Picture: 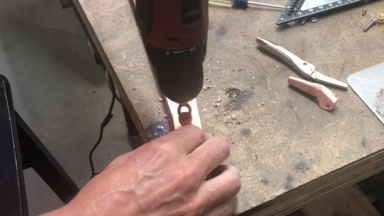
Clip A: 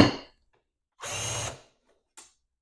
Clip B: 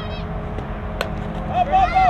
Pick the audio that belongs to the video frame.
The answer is A